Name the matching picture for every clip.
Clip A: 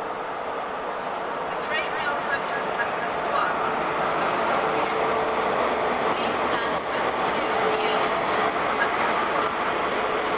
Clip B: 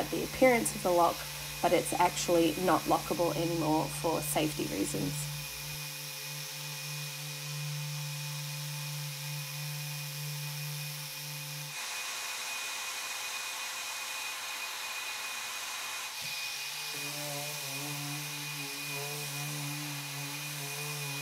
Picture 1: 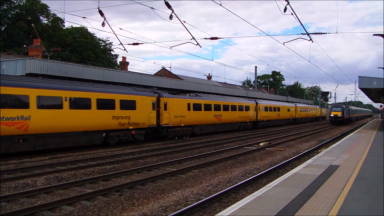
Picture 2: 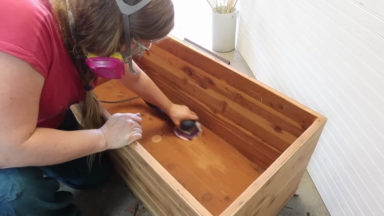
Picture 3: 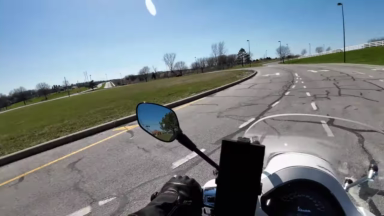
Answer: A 1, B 2